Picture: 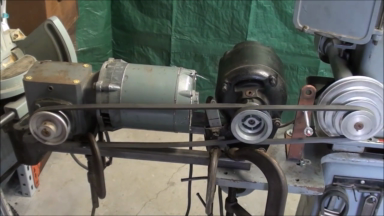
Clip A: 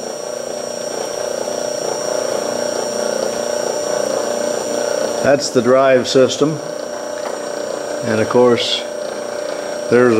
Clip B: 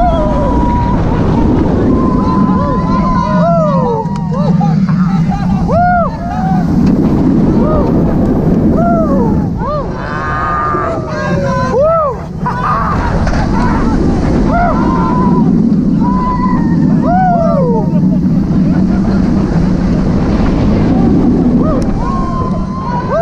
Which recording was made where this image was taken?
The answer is A